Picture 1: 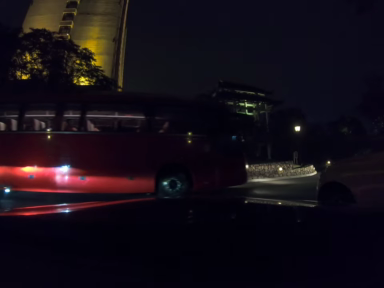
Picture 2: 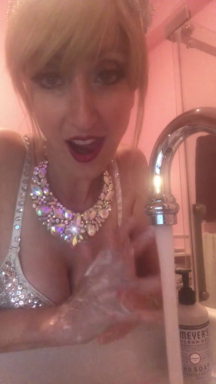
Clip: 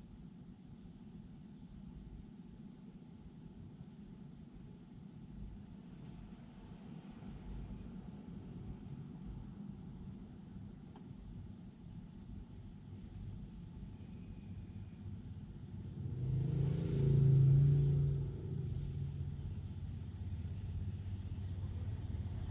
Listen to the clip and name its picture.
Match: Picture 1